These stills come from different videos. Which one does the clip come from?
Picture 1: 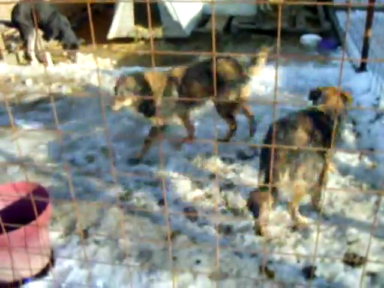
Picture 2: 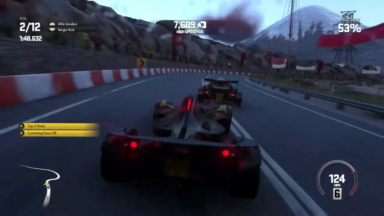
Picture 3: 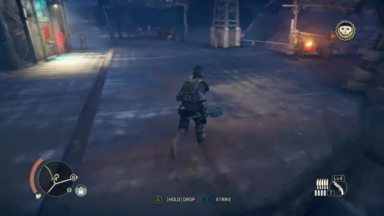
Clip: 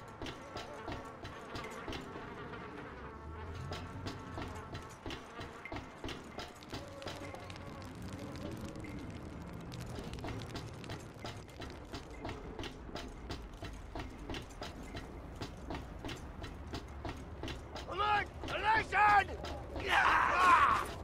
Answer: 3